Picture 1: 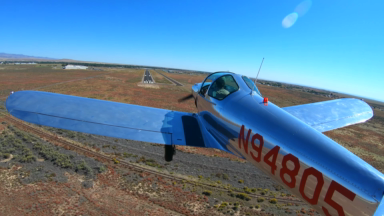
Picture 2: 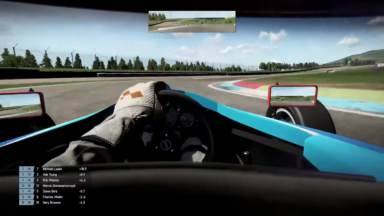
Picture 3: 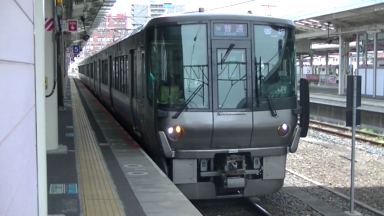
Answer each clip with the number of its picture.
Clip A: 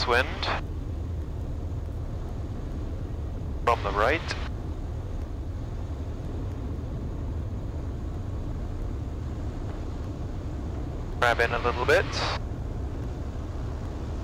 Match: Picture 1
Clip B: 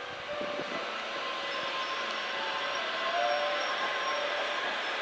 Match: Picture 3